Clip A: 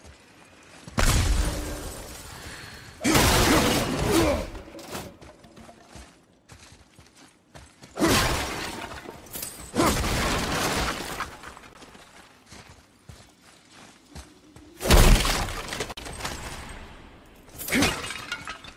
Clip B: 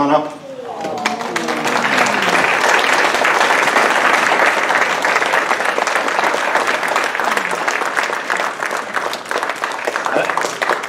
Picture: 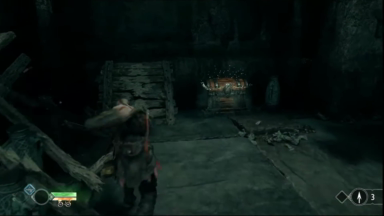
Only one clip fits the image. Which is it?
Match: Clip A